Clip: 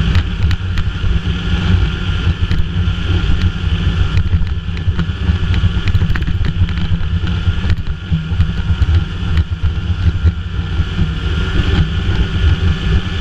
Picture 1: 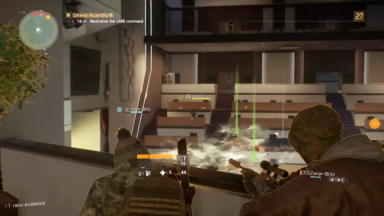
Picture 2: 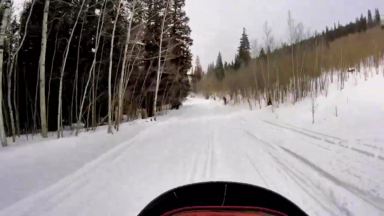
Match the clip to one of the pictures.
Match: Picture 2